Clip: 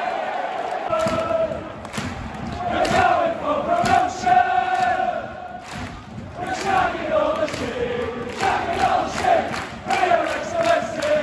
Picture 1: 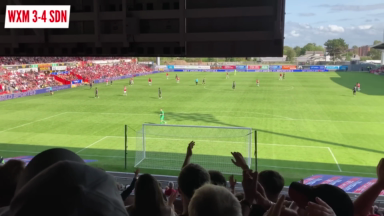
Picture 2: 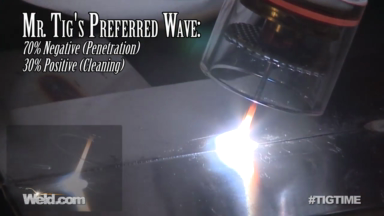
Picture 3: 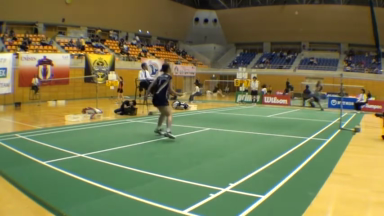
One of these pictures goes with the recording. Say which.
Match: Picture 1